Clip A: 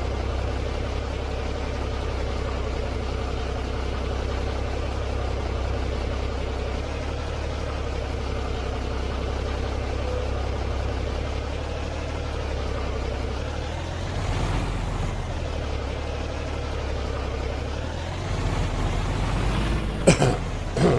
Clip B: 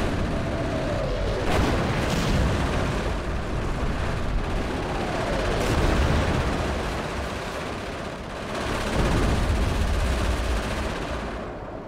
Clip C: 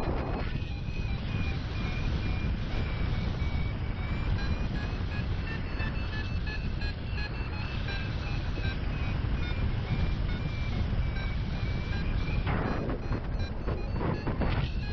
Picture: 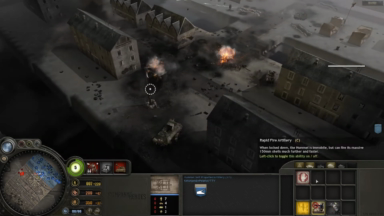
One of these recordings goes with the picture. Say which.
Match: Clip B